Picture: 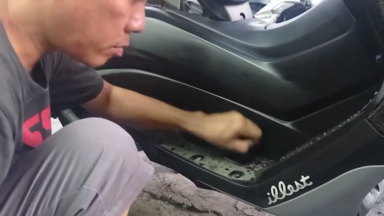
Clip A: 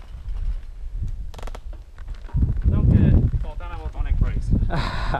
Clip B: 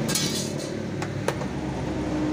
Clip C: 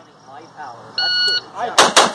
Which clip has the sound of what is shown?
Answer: B